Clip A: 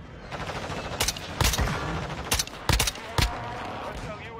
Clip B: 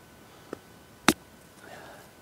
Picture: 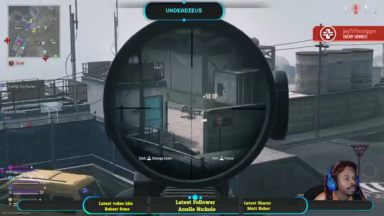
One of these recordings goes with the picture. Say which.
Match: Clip A